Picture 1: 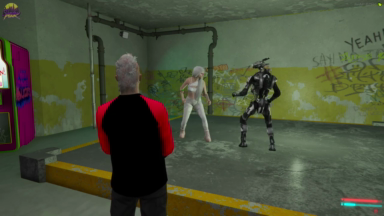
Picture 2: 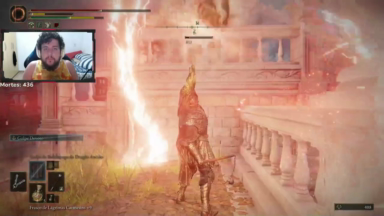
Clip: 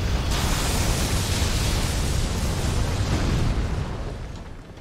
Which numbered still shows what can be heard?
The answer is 2